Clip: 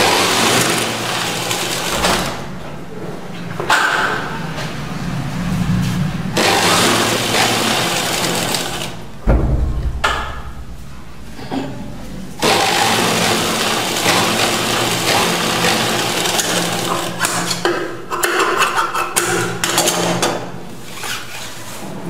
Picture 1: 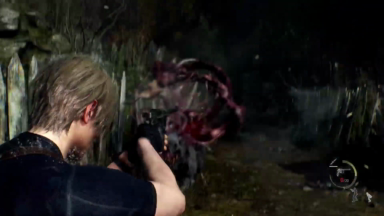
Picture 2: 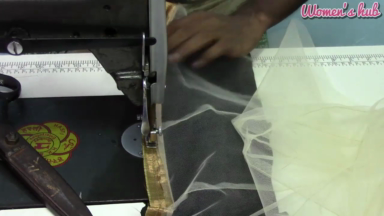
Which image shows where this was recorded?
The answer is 2